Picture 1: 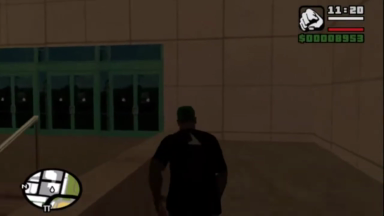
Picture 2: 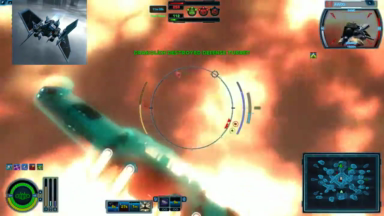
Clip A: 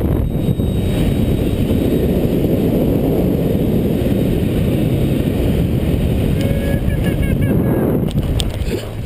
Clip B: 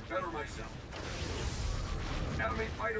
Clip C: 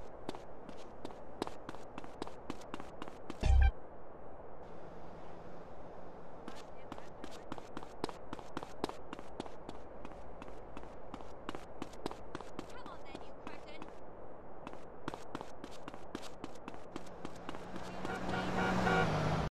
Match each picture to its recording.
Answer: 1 C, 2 B